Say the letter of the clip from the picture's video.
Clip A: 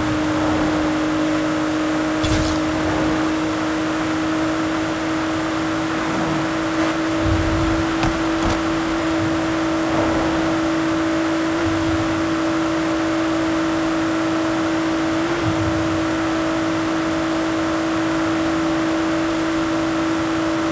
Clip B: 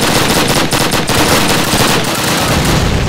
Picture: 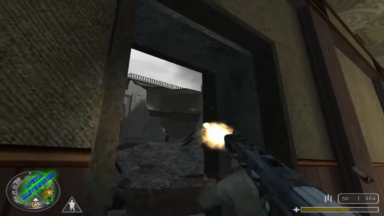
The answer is B